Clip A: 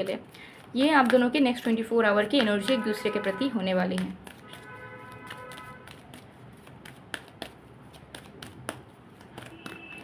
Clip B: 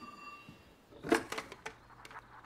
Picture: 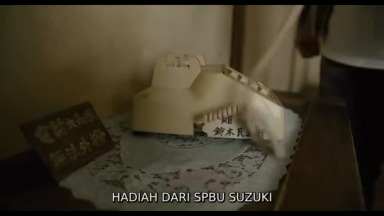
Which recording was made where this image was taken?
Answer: B